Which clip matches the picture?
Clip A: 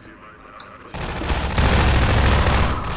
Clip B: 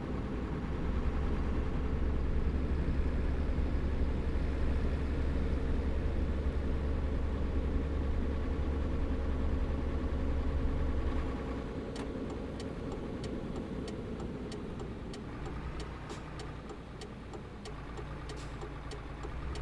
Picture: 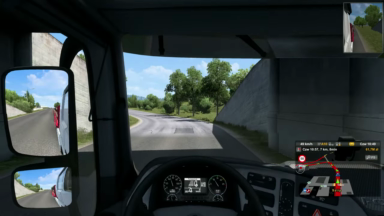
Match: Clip B